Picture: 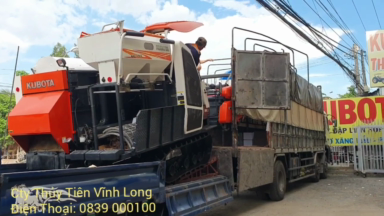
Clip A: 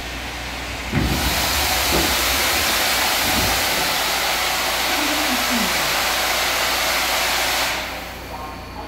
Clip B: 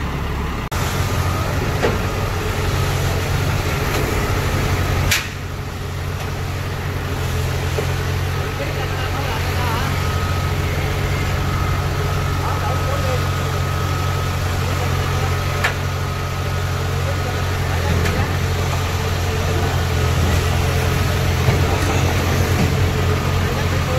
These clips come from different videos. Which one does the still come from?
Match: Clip B